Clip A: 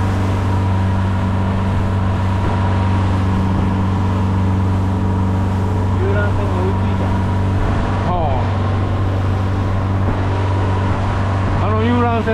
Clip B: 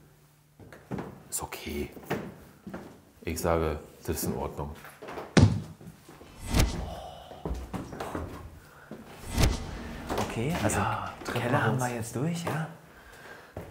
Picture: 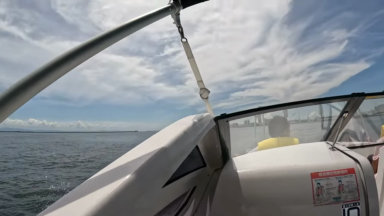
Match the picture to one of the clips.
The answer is A